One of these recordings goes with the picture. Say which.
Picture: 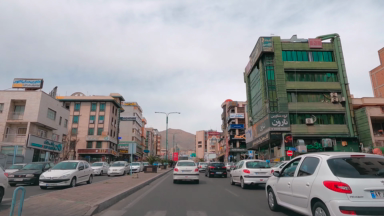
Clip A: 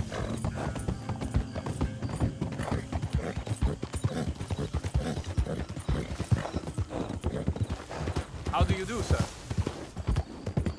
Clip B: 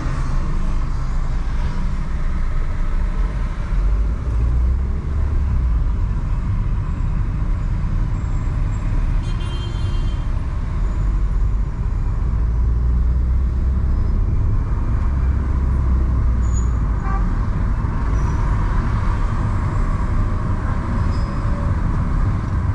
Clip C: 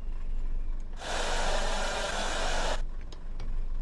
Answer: B